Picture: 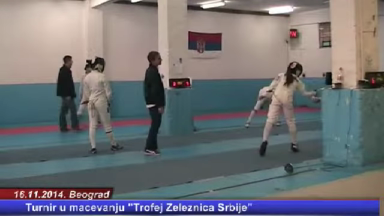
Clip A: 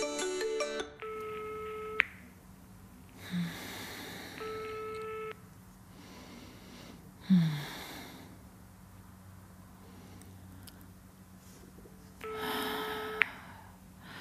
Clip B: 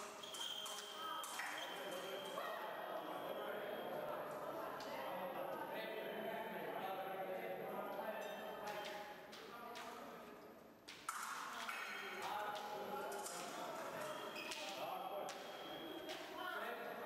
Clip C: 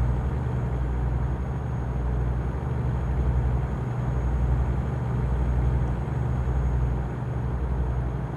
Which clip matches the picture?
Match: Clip B